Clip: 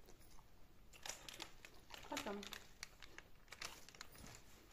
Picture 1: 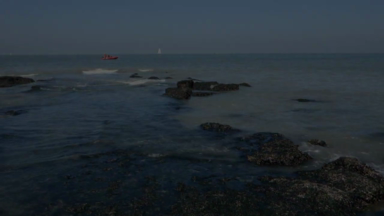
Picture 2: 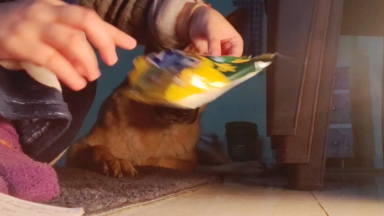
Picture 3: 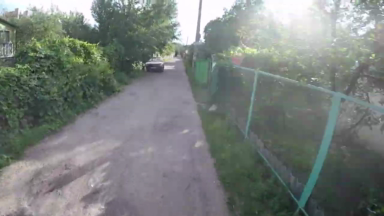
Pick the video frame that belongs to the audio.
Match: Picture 2